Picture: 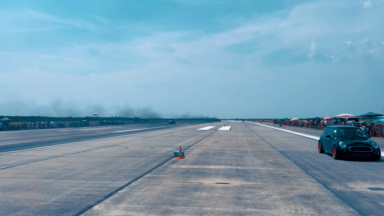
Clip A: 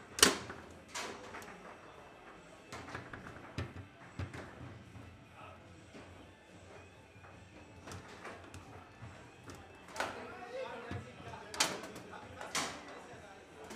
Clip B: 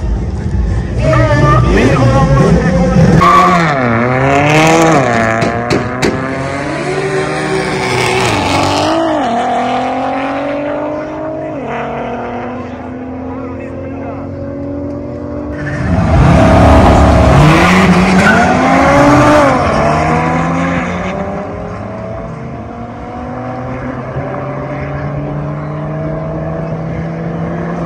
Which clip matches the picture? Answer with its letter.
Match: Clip B